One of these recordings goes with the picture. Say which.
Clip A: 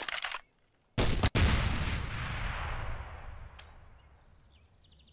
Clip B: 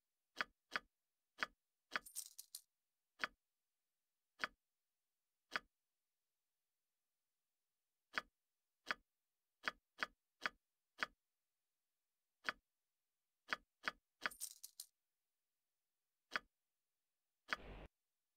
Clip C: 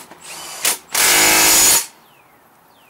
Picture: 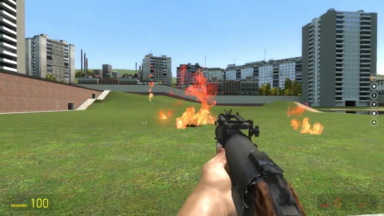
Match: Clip A